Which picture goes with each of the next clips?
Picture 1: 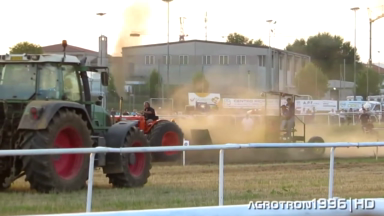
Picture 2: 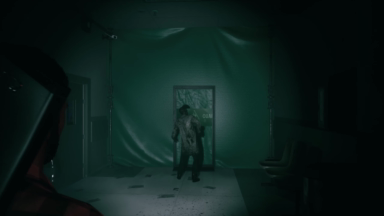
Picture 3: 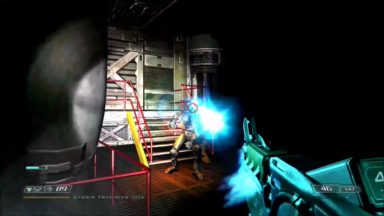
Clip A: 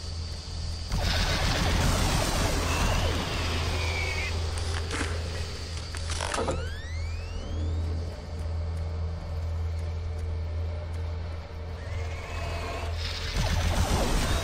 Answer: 3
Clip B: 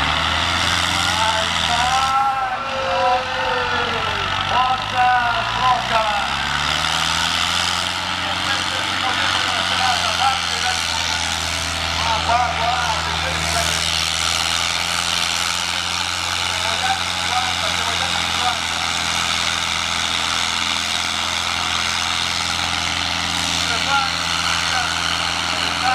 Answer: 1